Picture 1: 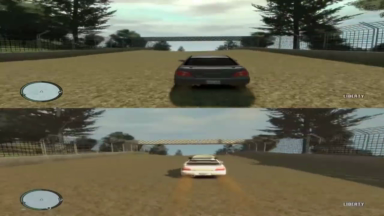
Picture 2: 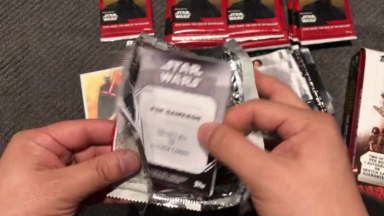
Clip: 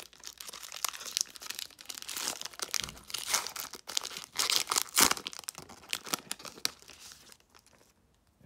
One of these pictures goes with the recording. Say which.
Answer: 2